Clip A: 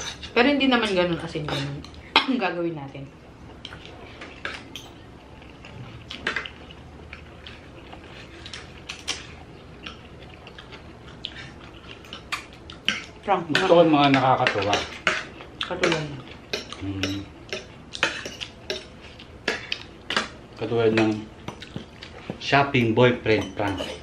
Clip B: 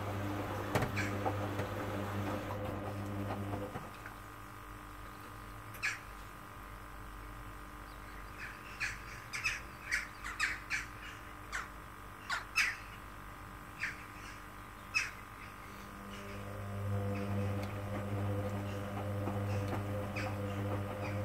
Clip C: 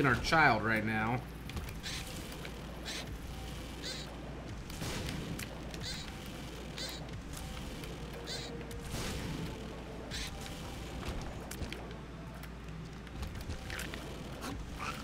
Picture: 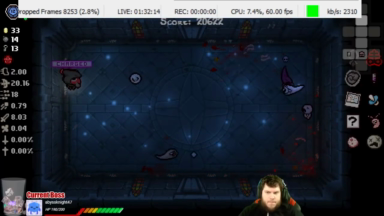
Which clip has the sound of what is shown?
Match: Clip C